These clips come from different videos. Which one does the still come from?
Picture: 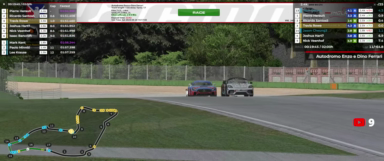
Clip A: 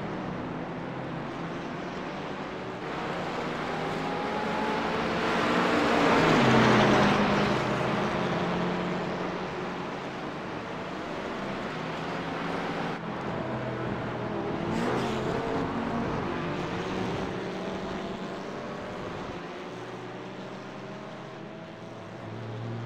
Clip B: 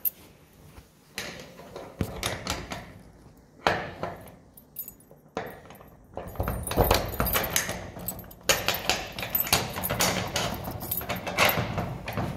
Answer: A